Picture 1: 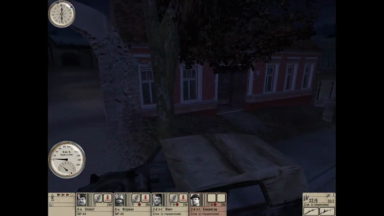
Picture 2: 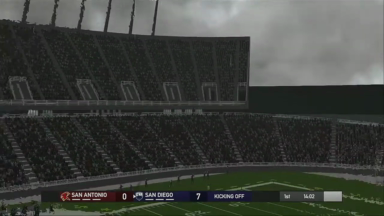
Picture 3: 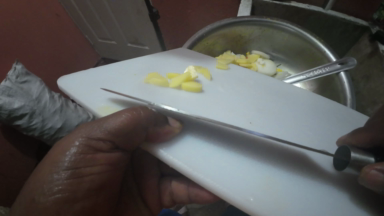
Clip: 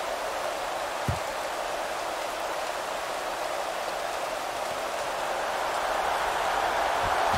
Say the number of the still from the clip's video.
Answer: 2